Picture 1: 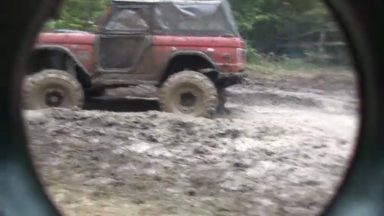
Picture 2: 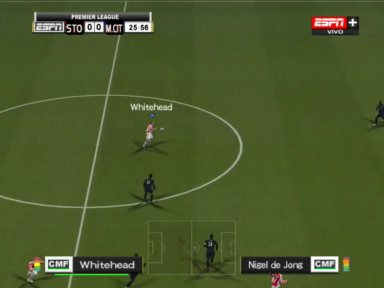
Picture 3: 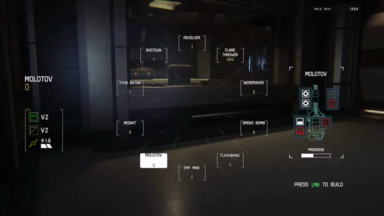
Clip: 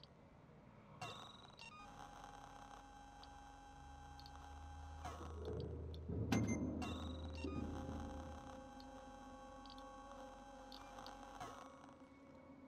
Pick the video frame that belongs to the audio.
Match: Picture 3